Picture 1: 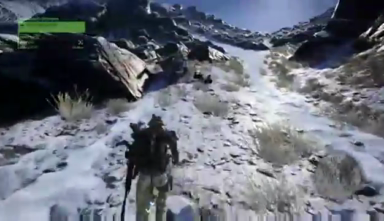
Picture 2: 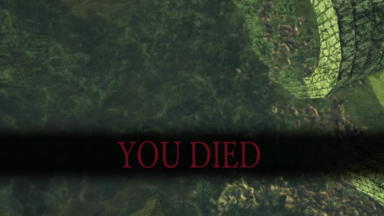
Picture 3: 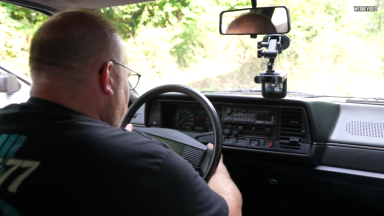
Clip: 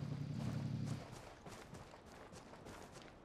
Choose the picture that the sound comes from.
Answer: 1